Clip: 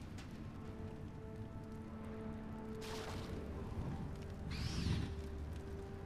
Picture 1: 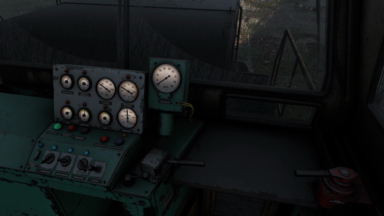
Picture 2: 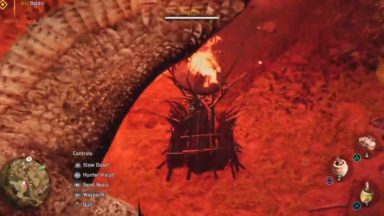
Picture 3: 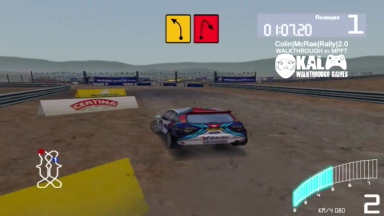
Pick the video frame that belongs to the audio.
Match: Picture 2